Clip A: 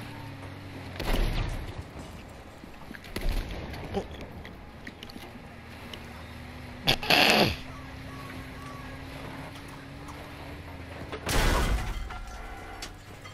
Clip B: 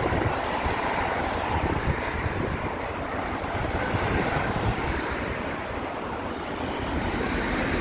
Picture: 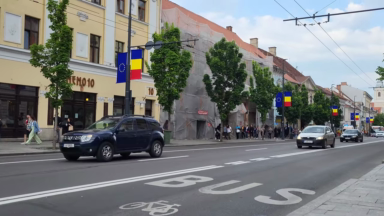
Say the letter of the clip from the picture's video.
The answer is B